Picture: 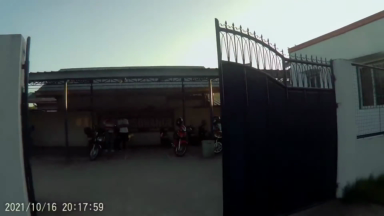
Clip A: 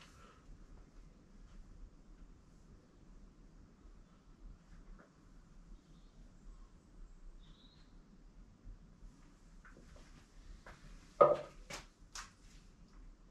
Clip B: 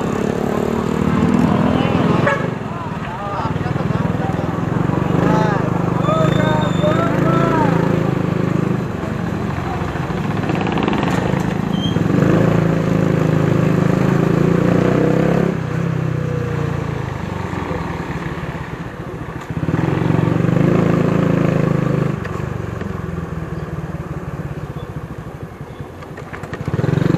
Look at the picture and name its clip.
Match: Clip B